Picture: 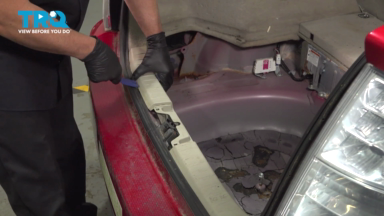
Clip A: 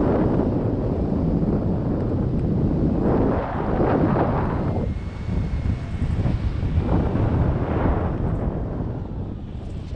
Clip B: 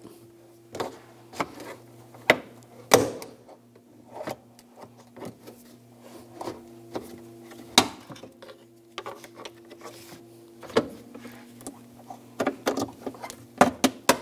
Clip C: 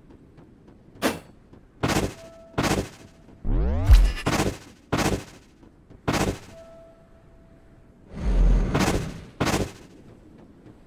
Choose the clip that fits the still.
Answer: B